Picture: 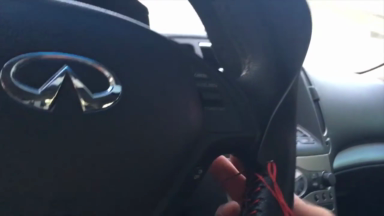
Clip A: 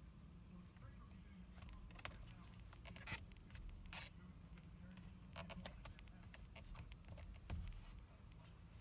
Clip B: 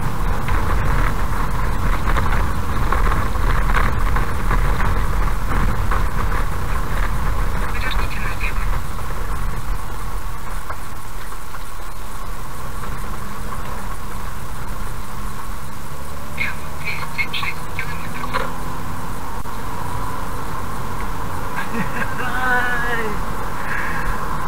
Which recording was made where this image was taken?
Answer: A